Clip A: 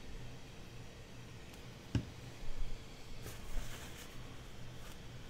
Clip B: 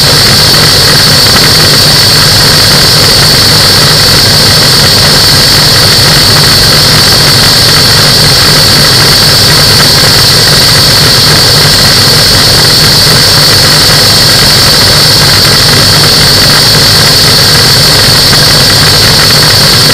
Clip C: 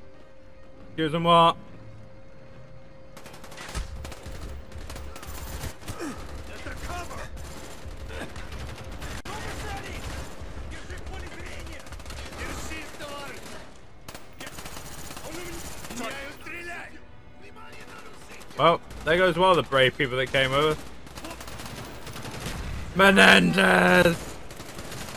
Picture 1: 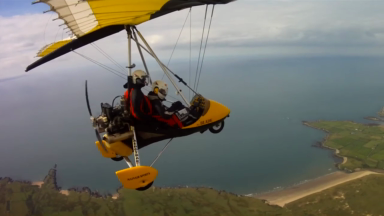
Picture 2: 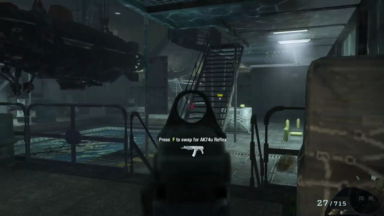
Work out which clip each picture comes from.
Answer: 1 B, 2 C